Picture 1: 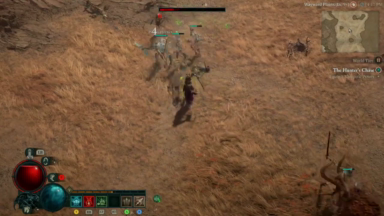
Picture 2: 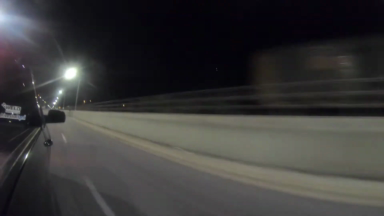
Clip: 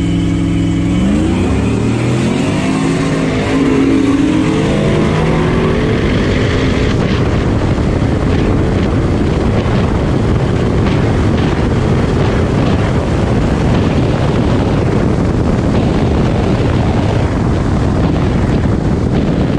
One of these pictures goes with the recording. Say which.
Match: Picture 2